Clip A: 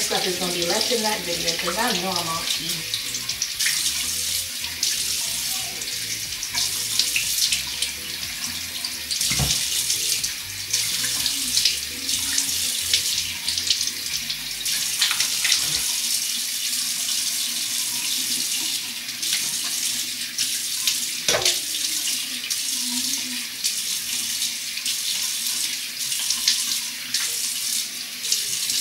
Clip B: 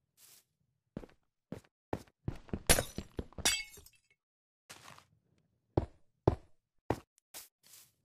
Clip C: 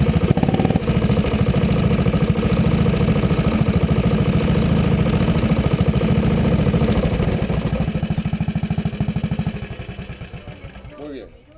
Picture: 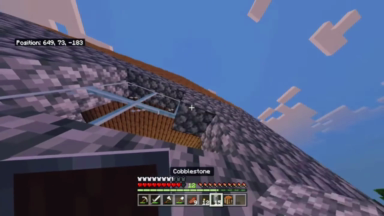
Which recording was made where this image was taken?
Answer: B